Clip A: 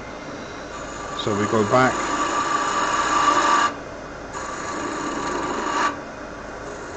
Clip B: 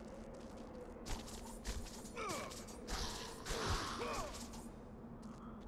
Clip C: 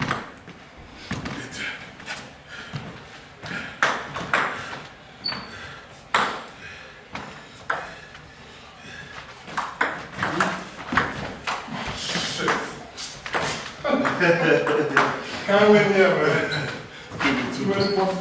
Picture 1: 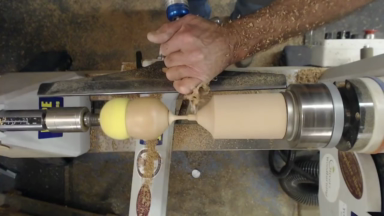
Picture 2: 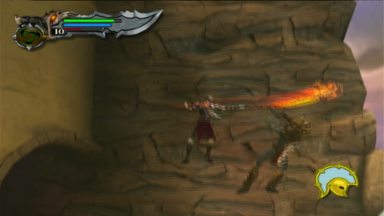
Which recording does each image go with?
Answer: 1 A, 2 B